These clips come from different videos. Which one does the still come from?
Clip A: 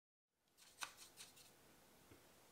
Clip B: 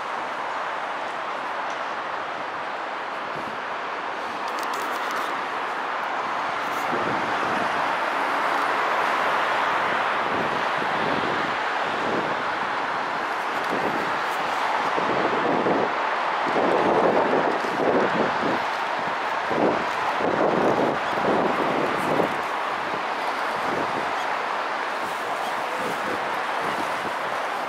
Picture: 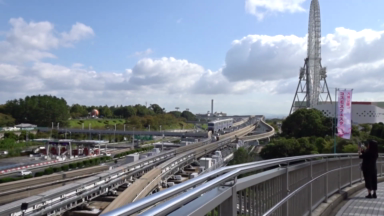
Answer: B